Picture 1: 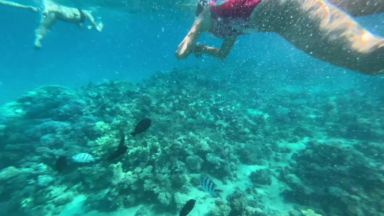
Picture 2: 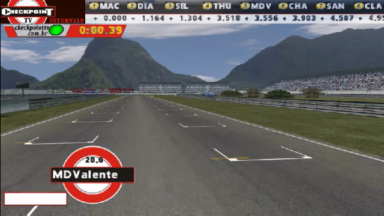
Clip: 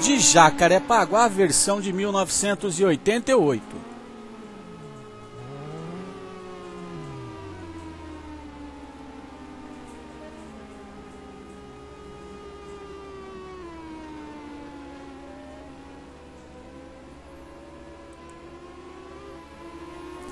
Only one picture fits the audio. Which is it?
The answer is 2